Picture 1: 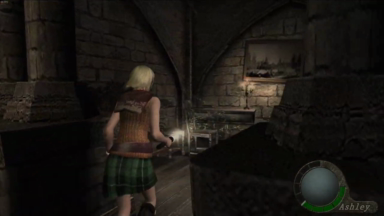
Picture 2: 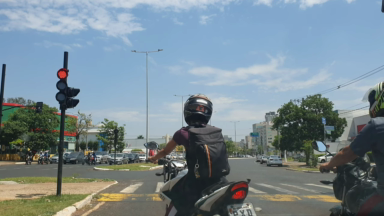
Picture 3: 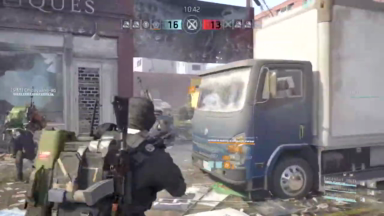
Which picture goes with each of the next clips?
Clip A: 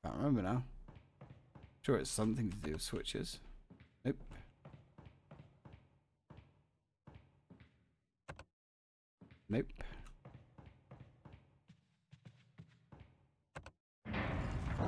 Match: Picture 1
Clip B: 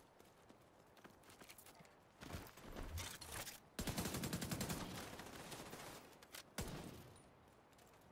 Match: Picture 3